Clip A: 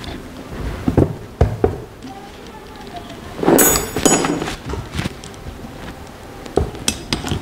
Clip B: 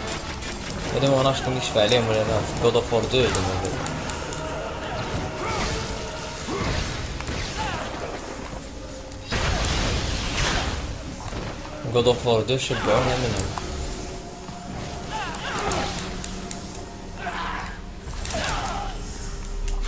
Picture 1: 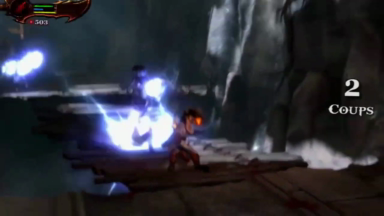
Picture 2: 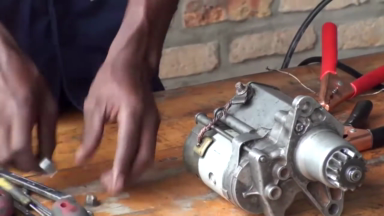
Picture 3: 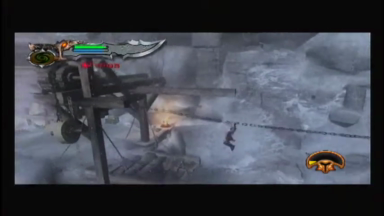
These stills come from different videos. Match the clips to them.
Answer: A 2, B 1